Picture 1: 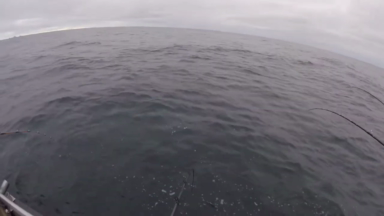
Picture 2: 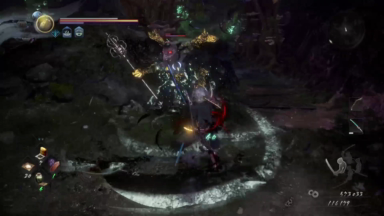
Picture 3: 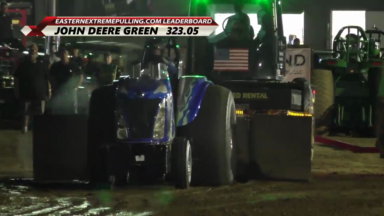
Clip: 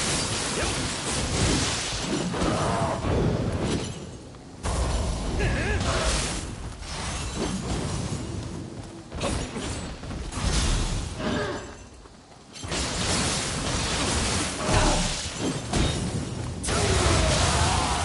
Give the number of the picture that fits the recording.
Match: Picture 2